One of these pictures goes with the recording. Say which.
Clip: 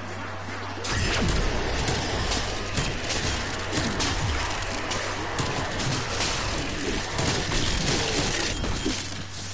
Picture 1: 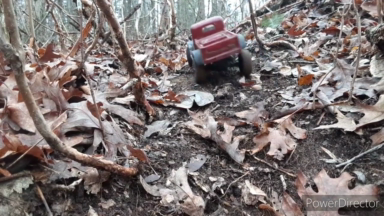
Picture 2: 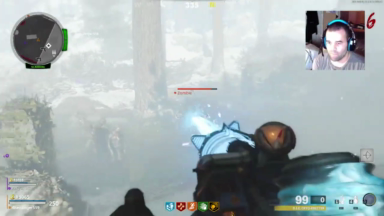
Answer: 2